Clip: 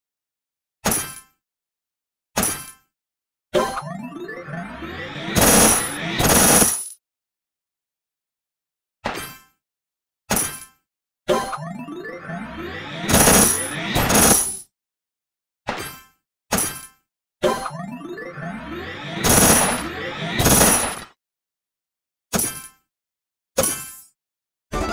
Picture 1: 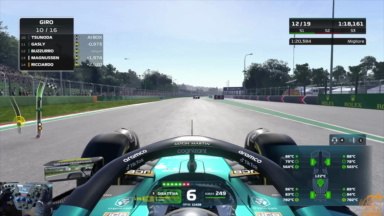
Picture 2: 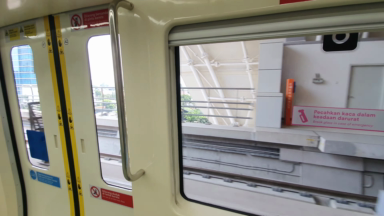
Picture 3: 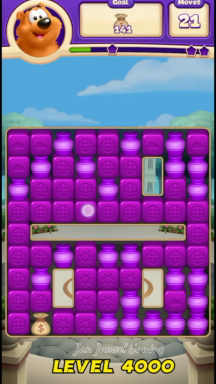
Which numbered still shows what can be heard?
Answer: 3